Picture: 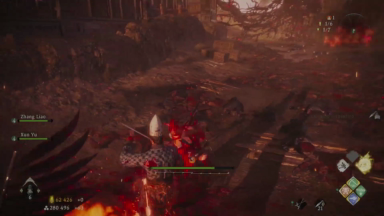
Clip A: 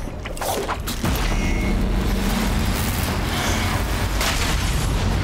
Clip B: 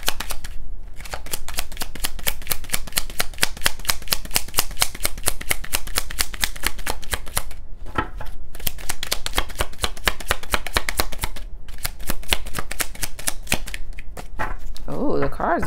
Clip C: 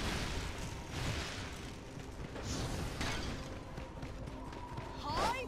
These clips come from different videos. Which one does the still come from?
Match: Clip C